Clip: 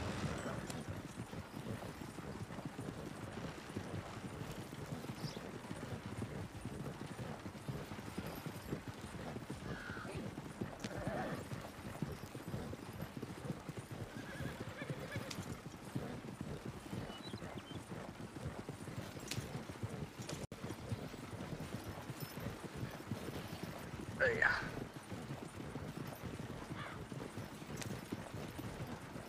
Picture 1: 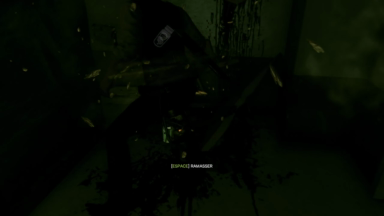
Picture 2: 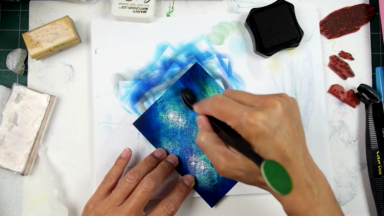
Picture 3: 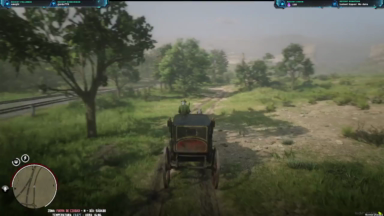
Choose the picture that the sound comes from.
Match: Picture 3